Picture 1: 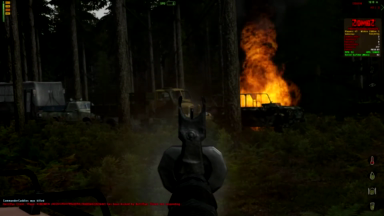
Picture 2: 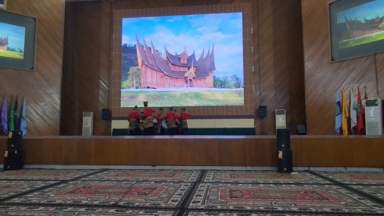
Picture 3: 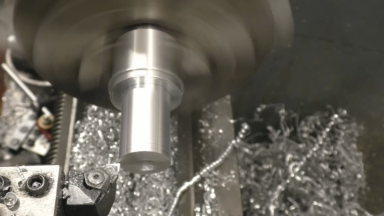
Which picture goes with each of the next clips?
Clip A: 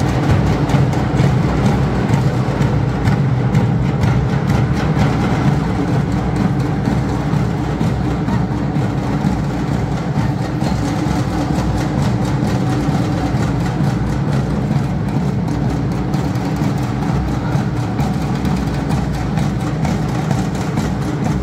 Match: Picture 2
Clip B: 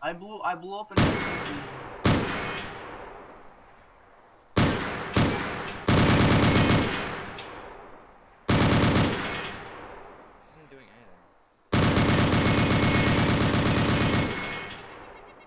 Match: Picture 1